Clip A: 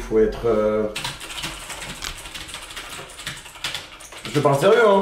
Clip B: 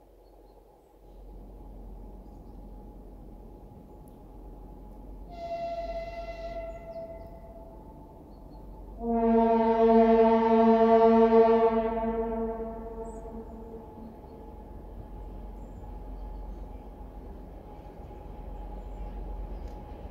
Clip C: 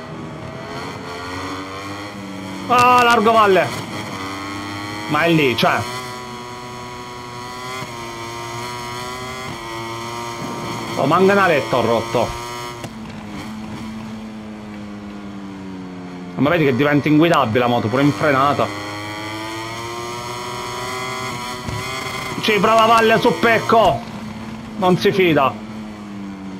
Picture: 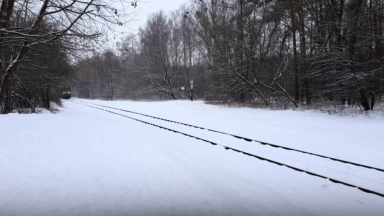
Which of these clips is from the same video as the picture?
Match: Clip B